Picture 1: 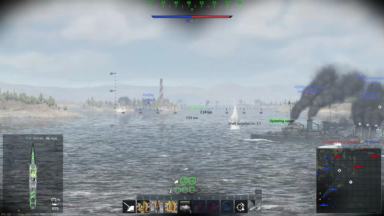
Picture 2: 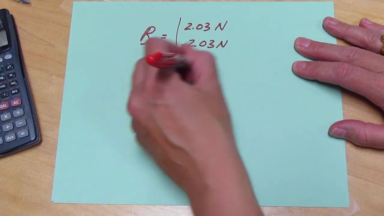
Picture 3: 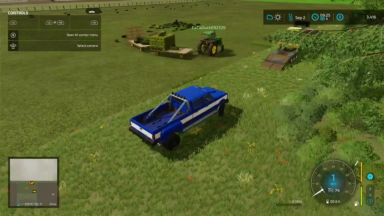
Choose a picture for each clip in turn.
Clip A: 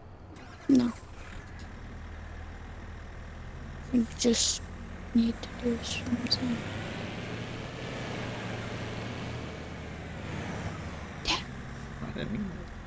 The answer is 3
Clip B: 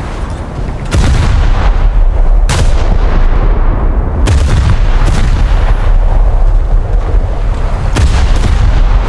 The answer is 1